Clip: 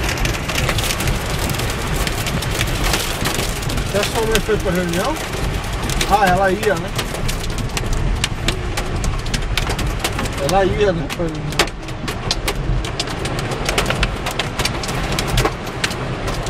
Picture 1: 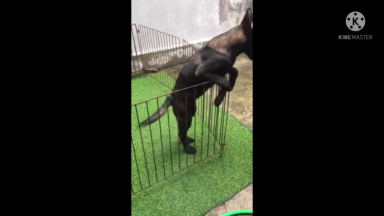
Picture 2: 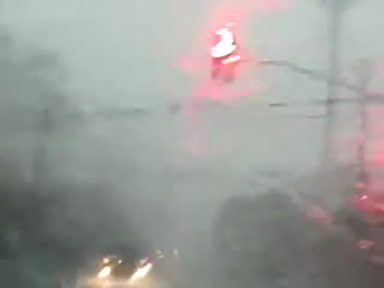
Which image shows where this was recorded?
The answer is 2